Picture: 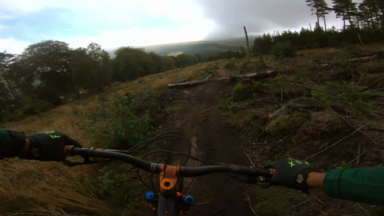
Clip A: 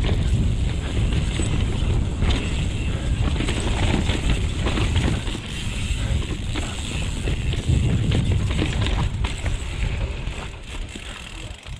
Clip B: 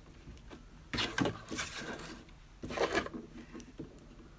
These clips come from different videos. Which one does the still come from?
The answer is A